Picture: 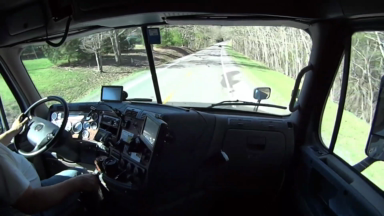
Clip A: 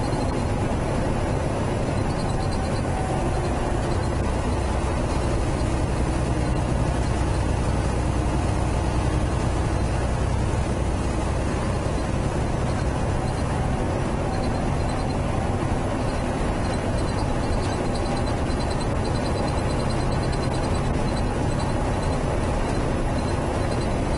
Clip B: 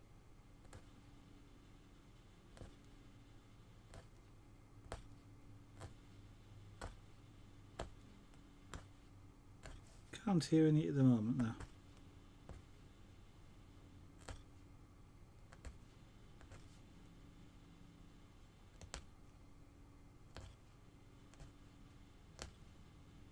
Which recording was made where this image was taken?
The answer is A